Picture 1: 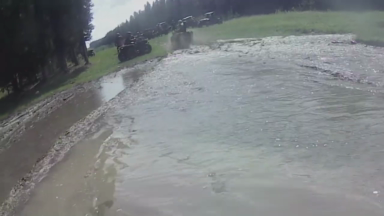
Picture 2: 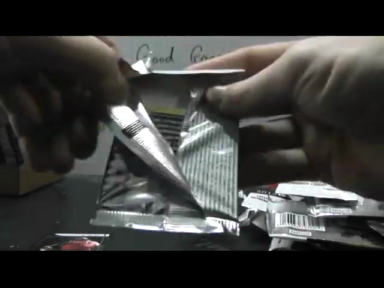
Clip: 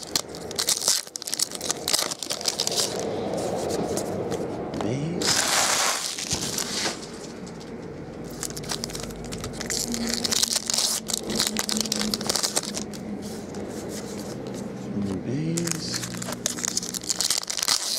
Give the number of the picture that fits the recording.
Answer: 2